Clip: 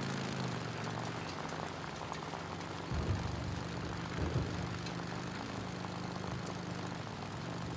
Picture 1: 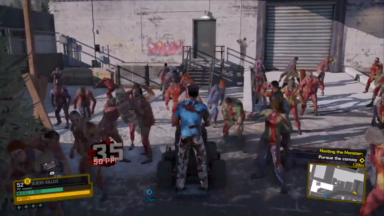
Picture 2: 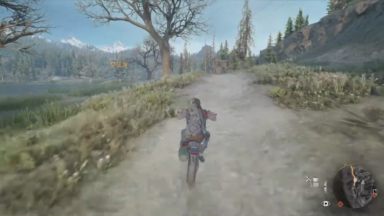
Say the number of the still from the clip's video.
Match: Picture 2